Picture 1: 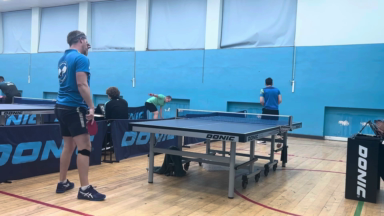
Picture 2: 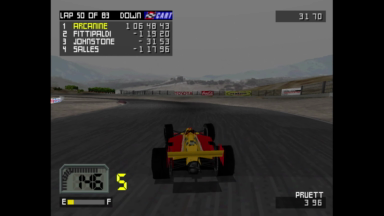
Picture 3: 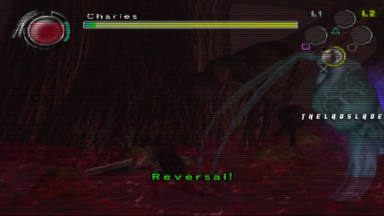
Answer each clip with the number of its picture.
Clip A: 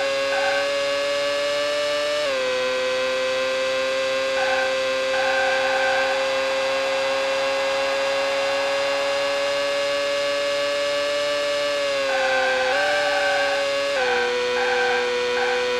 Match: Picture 2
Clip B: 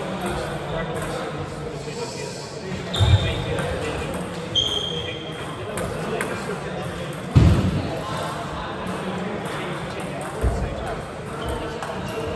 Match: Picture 1